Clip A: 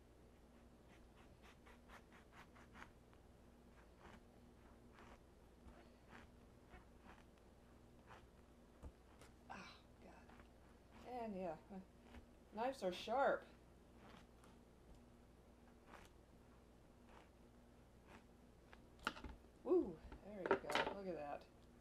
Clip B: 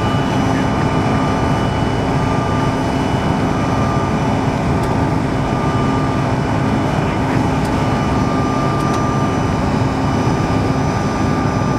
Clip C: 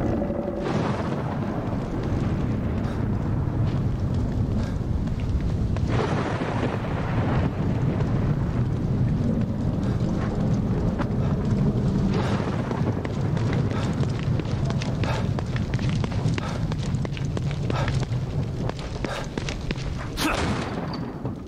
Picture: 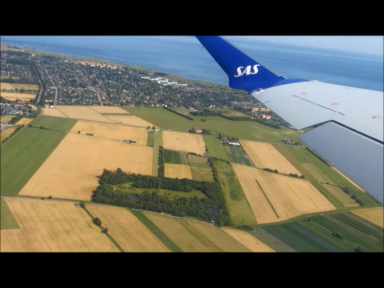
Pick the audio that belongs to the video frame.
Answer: B